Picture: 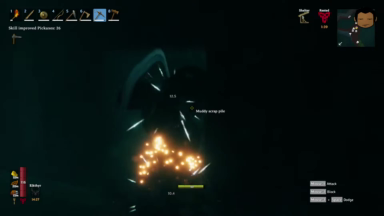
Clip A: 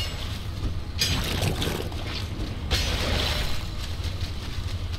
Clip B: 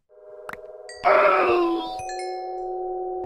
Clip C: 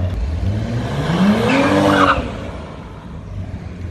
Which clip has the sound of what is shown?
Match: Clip A